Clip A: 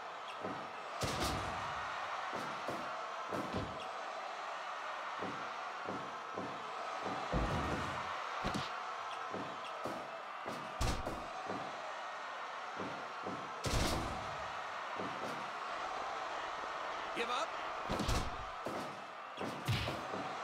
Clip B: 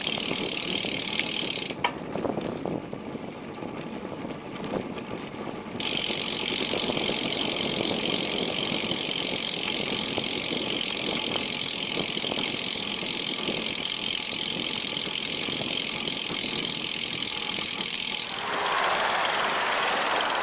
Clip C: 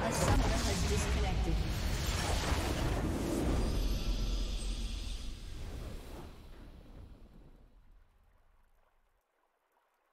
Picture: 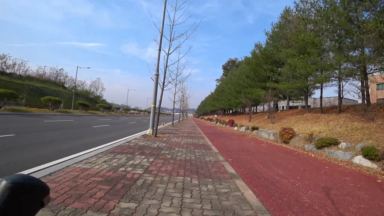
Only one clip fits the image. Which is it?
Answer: B